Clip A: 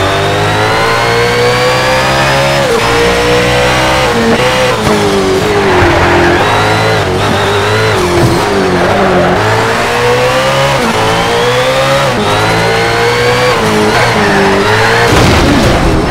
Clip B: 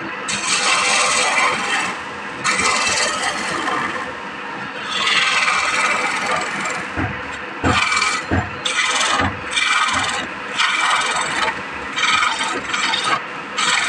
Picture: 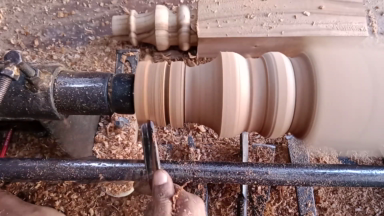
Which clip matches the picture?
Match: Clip B